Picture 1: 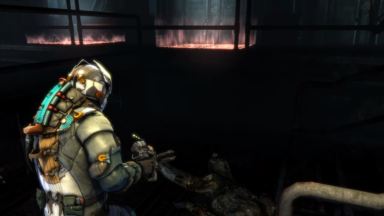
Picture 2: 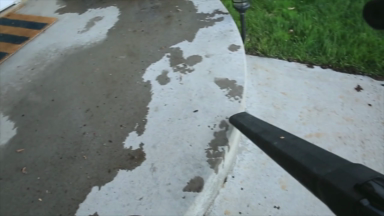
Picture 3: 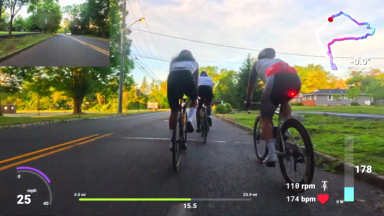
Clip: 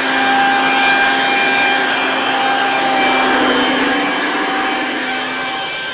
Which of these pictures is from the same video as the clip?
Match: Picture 2